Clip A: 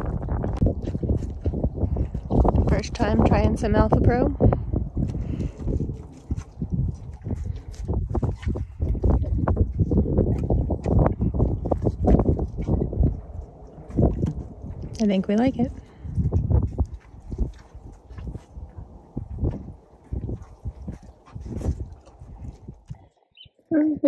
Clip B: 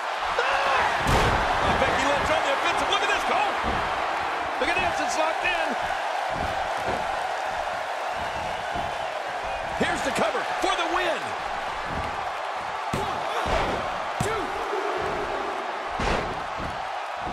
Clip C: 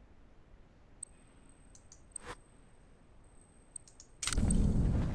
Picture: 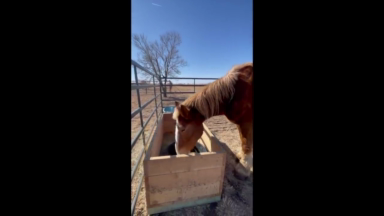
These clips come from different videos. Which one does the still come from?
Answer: A